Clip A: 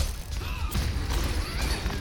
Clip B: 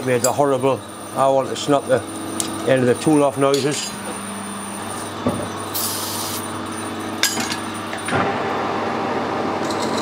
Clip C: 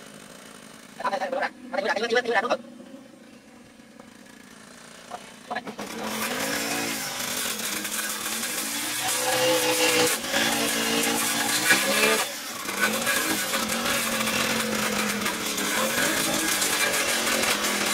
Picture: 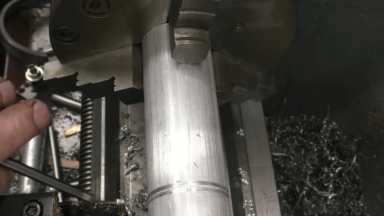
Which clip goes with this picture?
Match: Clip B